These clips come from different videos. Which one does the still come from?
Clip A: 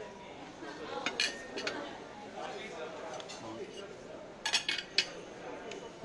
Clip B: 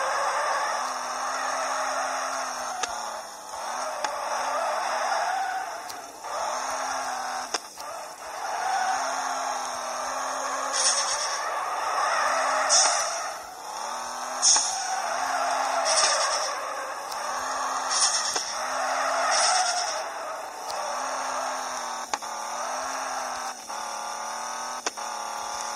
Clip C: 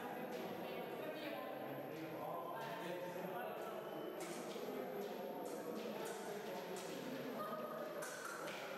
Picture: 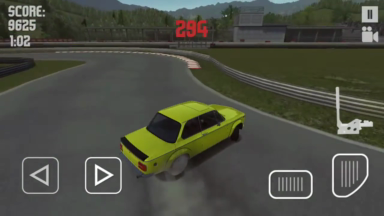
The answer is B